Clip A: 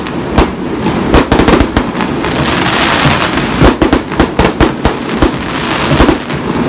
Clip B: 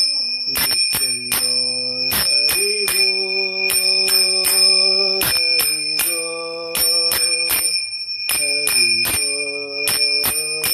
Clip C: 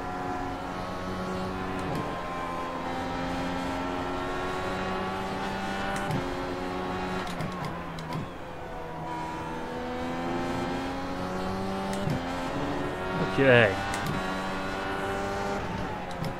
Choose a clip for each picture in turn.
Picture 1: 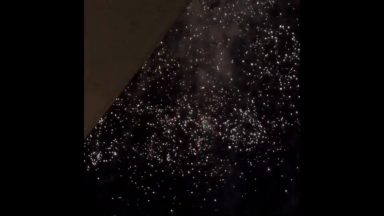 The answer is A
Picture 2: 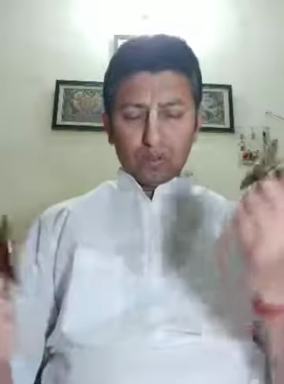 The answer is B